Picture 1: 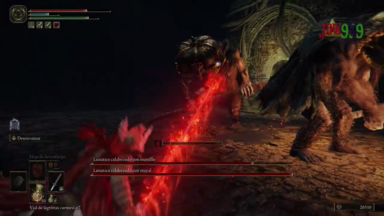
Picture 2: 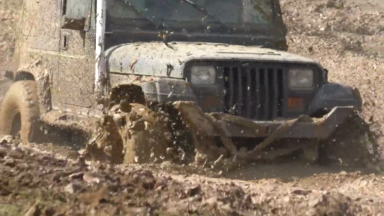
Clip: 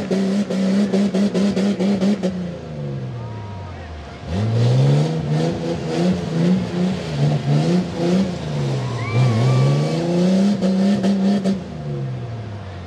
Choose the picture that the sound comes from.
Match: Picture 2